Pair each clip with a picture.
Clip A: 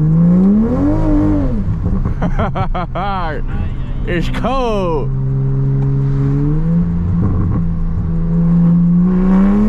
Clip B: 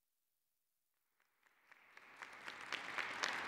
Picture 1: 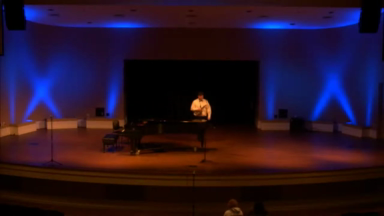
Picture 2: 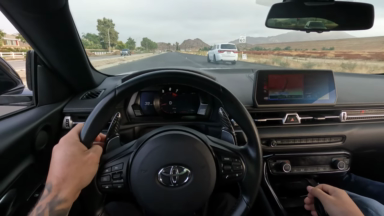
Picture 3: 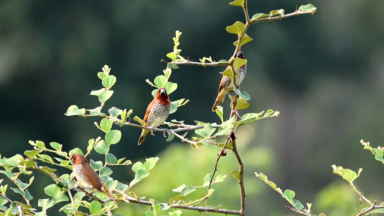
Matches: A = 2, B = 1